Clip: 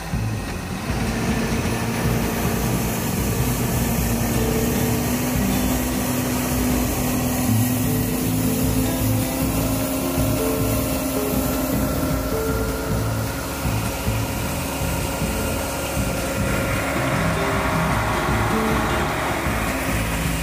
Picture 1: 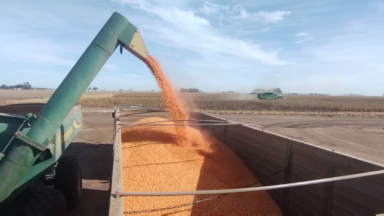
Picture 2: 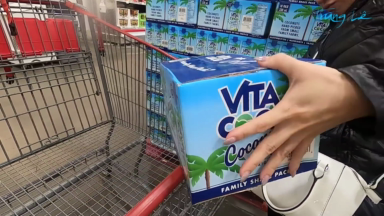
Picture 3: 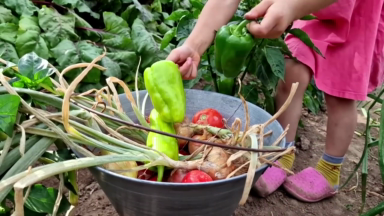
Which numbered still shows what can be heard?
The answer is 1